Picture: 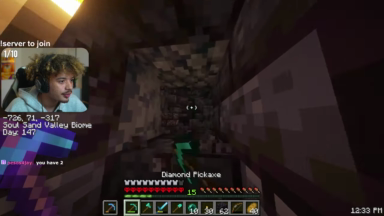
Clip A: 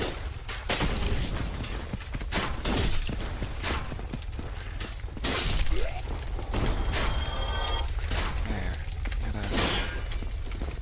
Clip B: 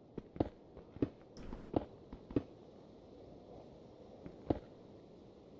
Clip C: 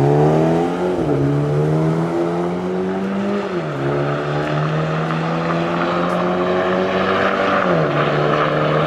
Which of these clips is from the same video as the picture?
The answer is B